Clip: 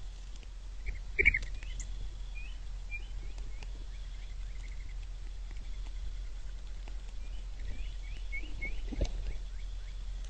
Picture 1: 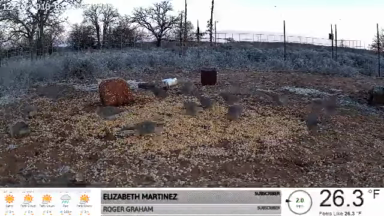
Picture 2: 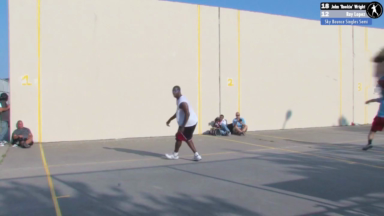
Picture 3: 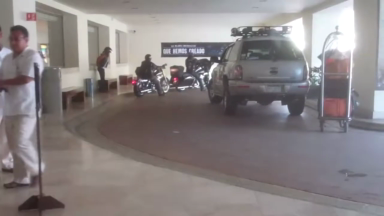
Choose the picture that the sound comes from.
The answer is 1